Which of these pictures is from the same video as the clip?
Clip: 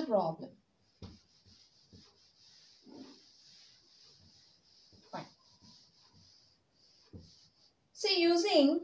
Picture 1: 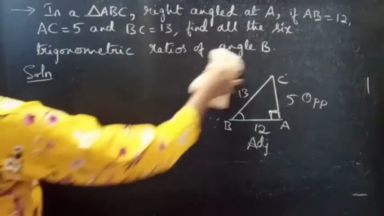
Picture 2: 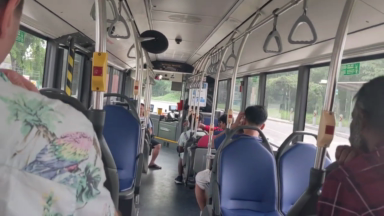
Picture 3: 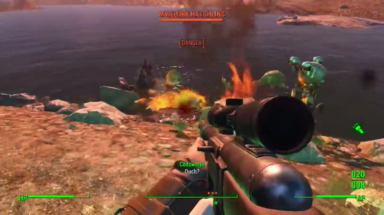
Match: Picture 1